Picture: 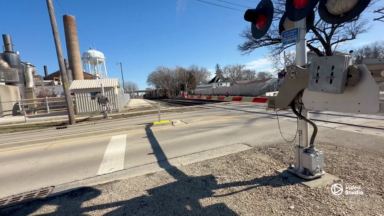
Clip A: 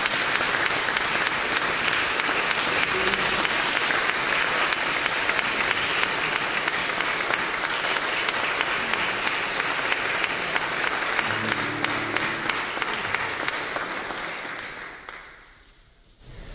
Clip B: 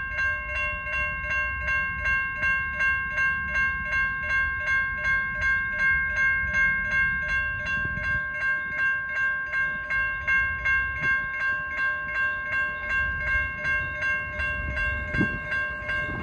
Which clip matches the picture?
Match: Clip B